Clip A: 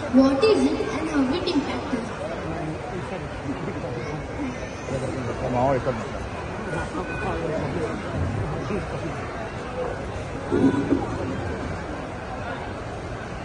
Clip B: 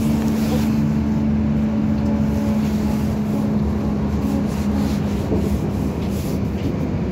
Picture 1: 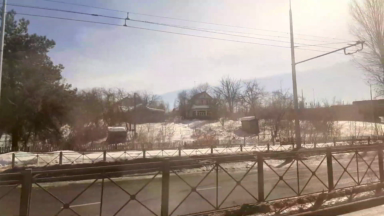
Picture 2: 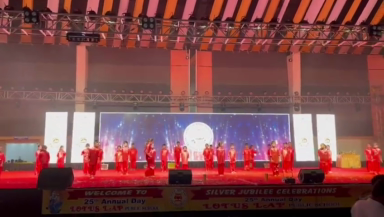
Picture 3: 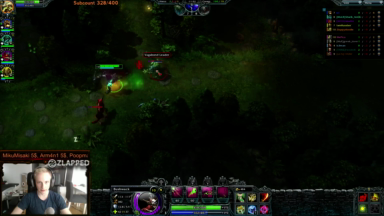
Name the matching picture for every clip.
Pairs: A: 2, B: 1